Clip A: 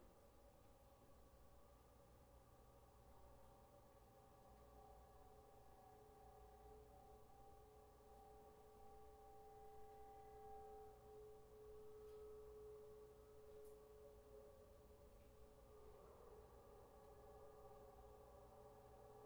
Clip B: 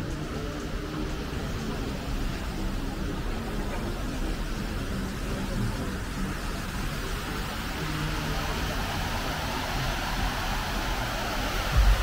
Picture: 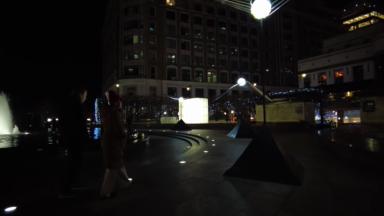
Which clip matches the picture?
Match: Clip B